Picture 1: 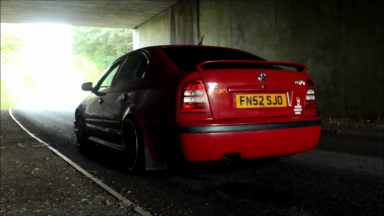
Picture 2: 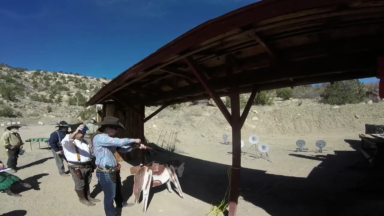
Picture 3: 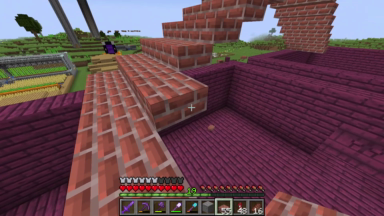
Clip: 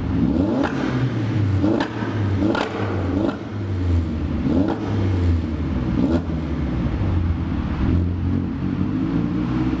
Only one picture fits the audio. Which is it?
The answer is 1